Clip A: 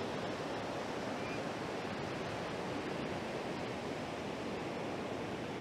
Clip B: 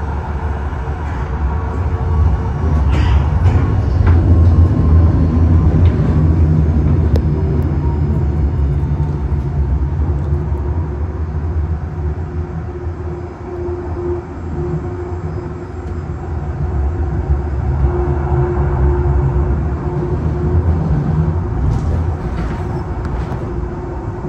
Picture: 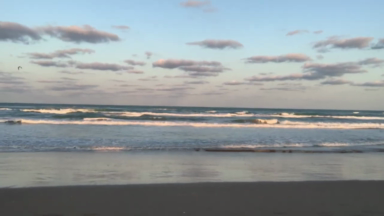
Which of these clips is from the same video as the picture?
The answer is A